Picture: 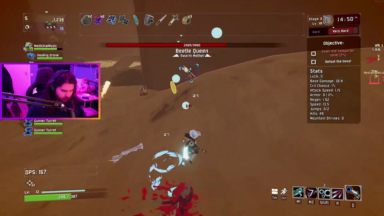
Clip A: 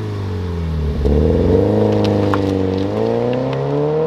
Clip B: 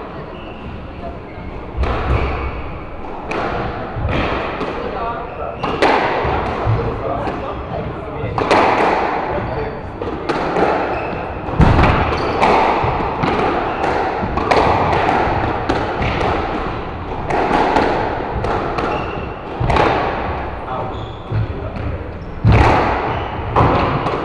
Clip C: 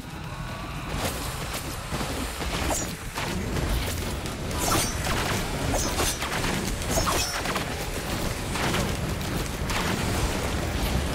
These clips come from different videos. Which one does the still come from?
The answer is C